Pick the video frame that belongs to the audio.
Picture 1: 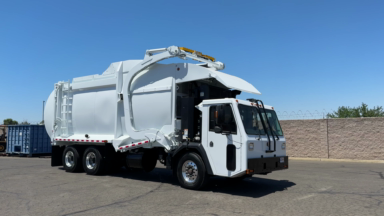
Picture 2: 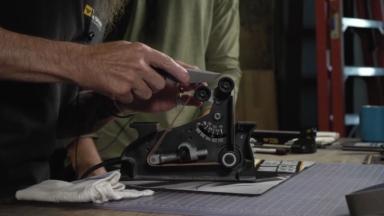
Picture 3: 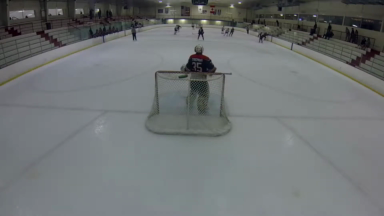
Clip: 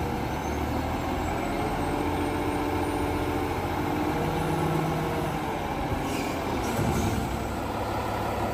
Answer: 1